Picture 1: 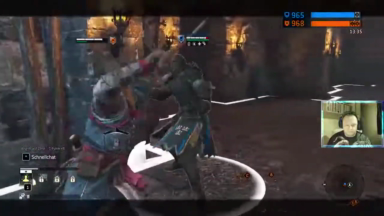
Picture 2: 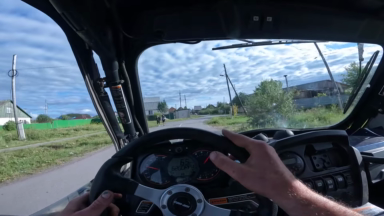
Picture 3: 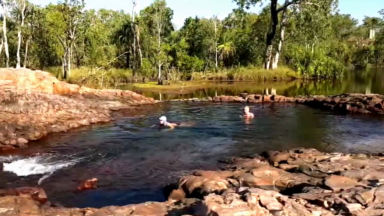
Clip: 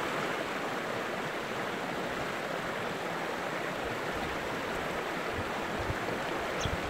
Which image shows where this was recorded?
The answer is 3